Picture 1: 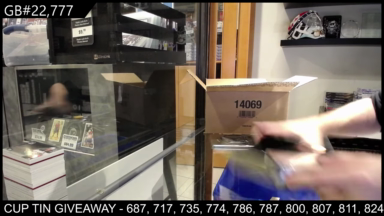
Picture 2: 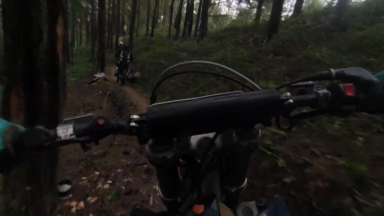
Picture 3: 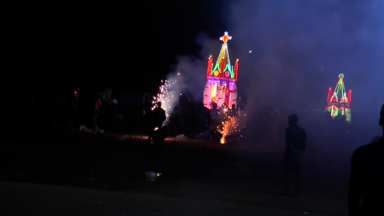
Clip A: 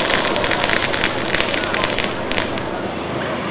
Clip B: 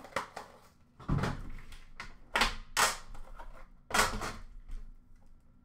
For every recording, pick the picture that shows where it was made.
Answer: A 3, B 1